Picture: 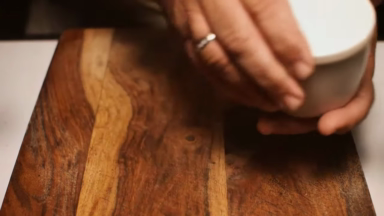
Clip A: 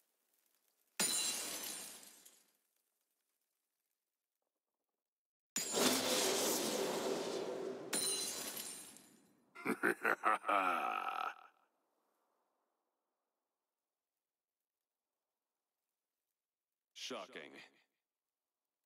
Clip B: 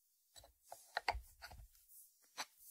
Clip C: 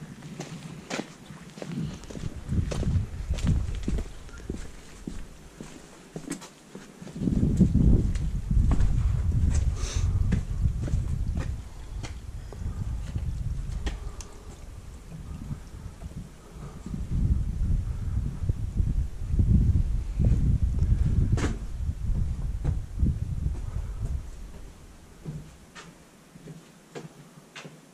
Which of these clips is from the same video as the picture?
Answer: B